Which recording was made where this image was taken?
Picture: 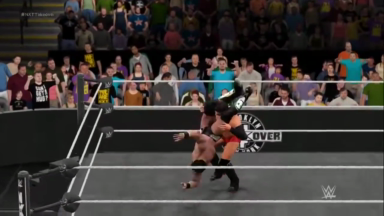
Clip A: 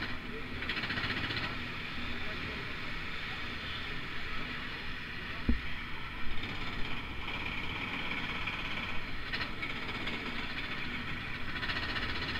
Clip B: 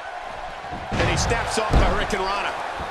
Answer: B